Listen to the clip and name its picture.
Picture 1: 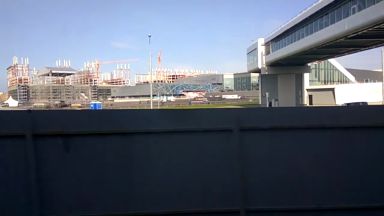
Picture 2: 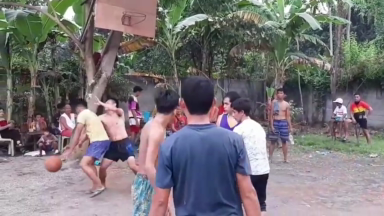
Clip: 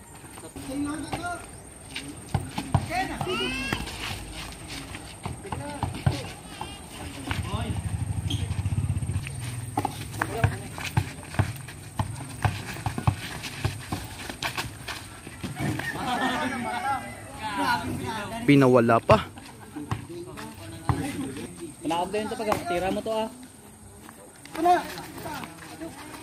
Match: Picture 2